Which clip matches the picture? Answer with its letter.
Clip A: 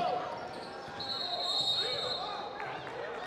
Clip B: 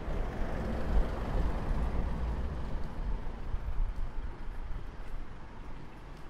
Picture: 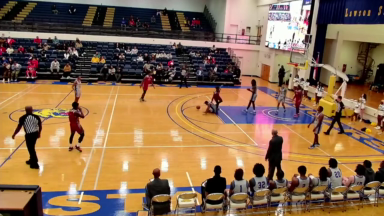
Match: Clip A